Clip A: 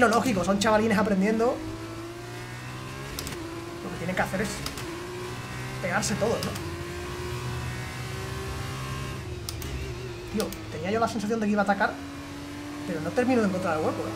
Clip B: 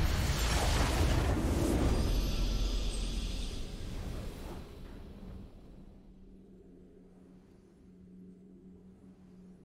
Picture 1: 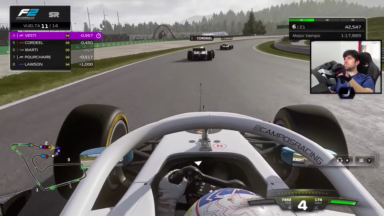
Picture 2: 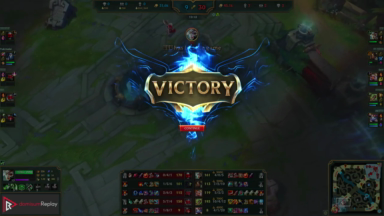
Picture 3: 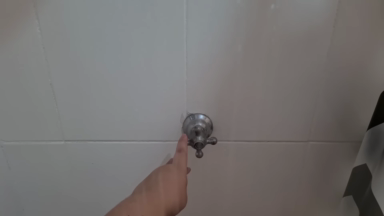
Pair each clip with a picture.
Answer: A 1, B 2